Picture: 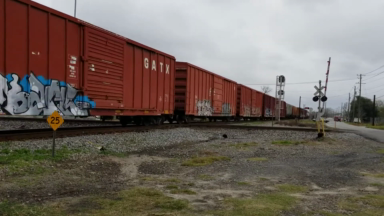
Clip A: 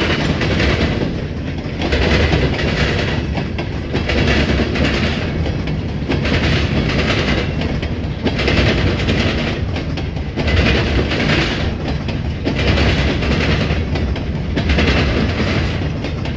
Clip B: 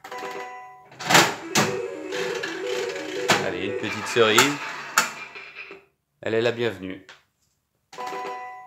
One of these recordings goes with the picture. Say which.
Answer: A